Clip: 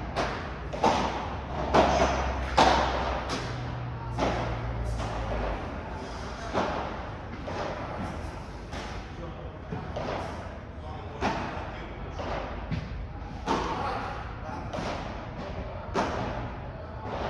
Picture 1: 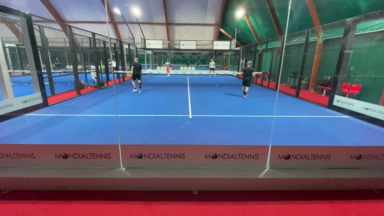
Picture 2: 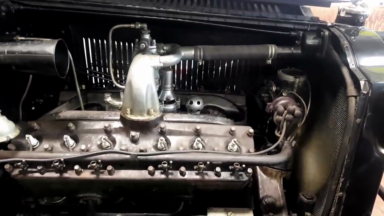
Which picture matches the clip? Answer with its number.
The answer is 1